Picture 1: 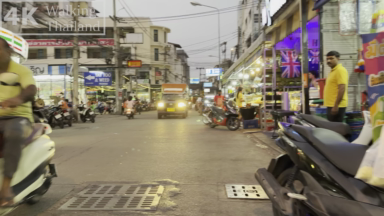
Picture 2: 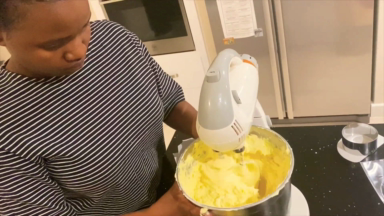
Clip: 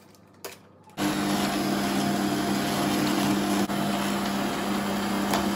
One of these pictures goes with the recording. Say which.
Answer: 2